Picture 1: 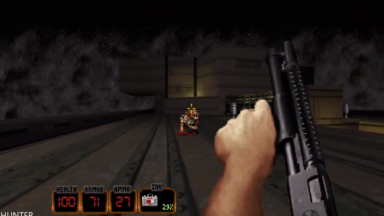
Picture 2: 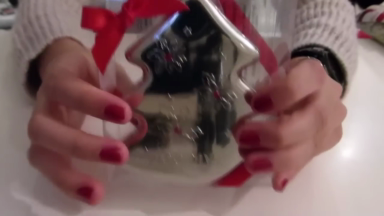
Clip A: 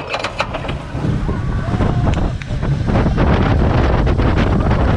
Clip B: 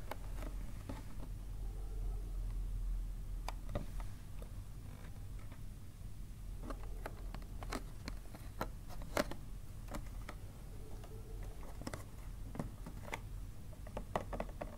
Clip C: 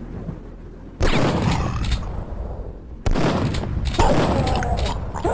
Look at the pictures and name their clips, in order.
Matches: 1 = C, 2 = B